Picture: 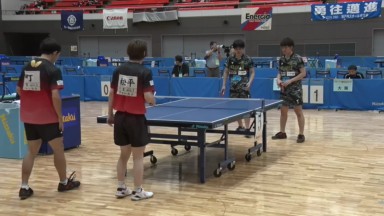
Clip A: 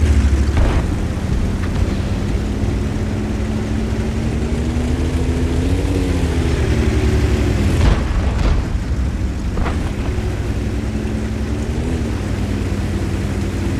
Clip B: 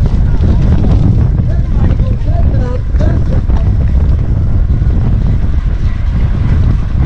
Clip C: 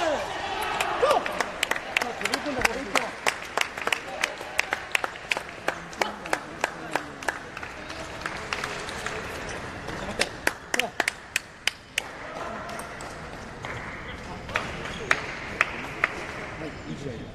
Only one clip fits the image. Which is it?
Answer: C